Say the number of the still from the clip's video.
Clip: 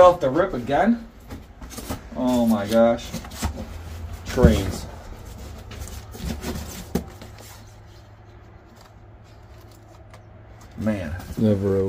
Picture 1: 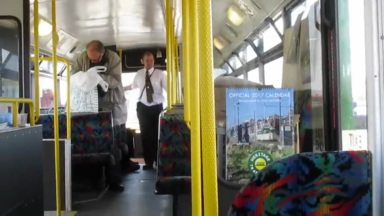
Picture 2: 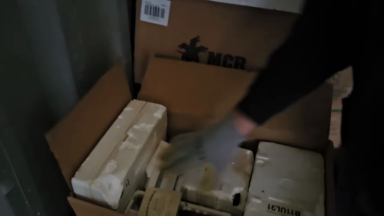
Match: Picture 2